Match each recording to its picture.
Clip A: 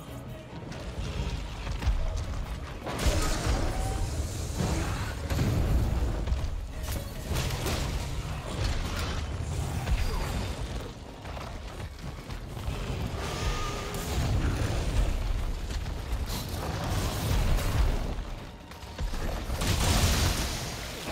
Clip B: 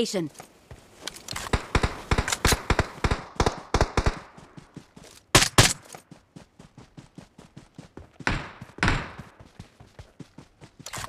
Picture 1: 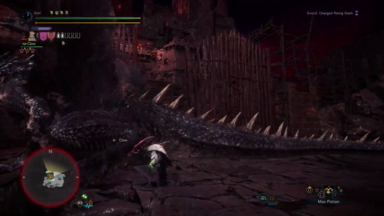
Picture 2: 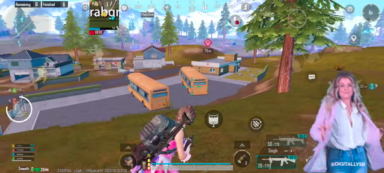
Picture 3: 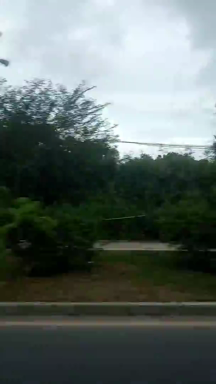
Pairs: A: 1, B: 2